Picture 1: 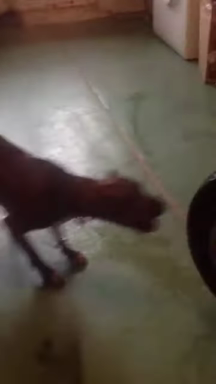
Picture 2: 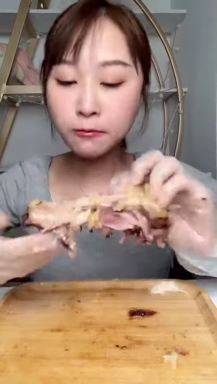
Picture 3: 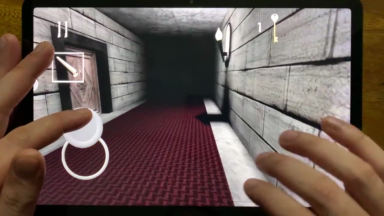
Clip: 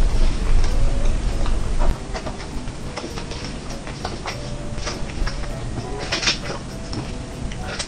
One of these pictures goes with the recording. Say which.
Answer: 2